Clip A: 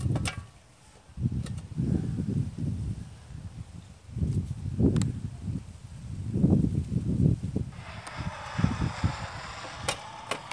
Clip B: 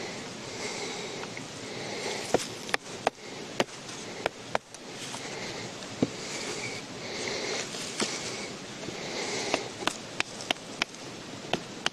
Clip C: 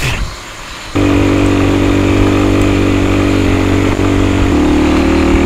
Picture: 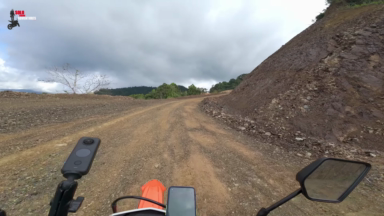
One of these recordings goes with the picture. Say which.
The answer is C